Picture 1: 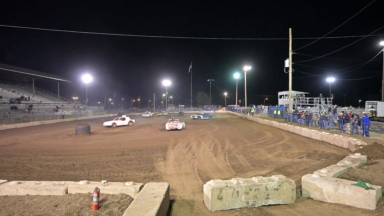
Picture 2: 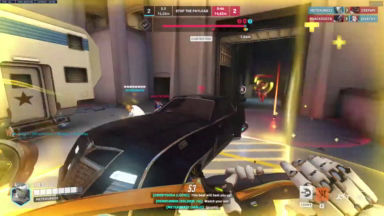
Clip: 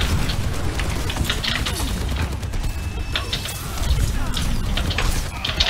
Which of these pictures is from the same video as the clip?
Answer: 2